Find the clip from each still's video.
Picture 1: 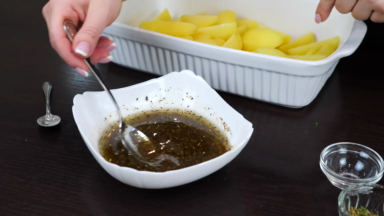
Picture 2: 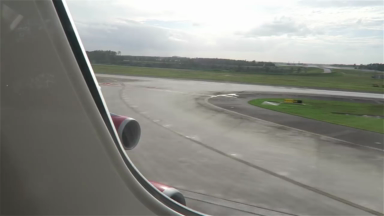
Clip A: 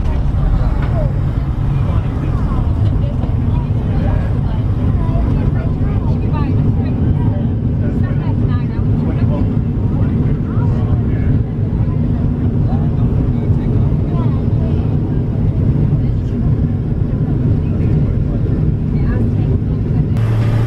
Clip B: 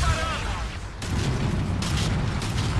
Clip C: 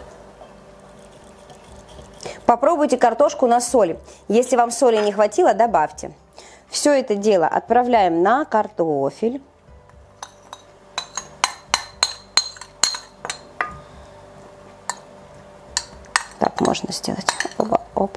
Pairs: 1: C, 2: A